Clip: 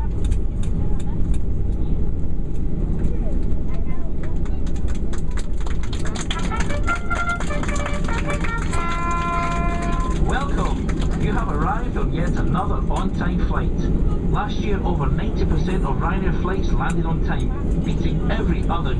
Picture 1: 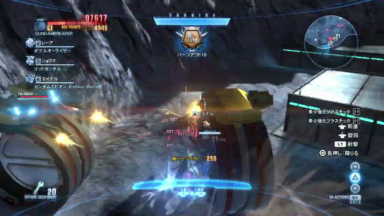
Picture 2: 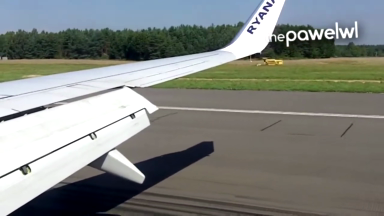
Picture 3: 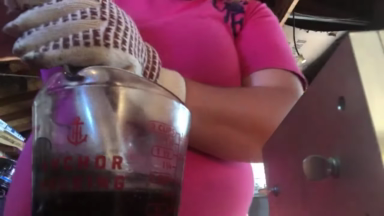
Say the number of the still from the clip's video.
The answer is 2